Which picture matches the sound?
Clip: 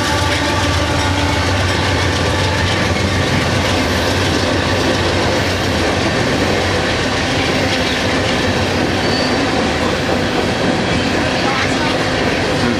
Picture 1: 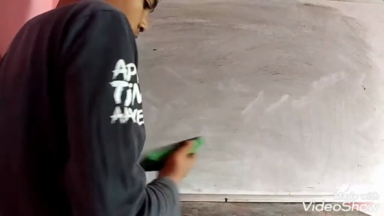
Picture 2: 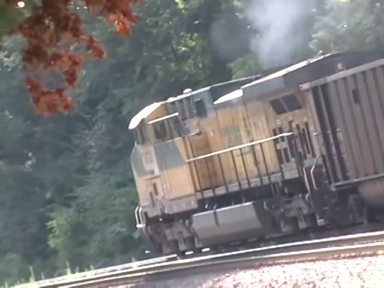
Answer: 2